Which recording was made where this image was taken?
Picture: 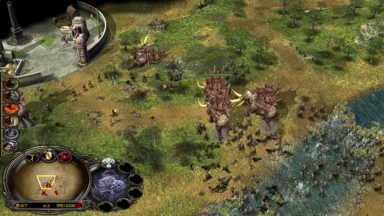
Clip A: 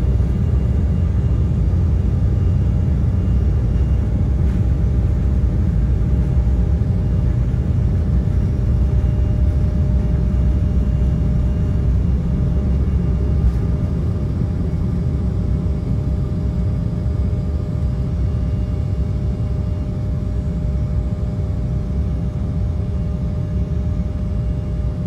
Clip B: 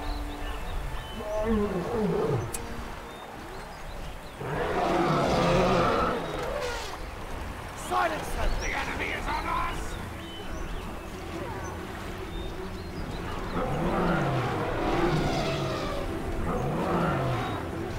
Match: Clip B